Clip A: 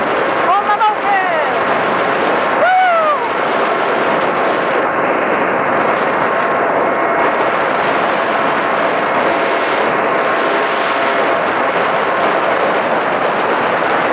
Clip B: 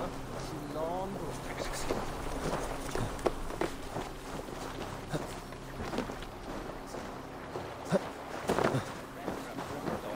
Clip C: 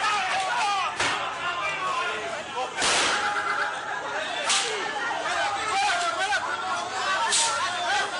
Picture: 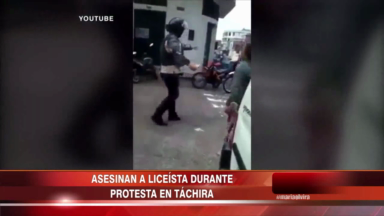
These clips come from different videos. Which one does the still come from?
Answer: C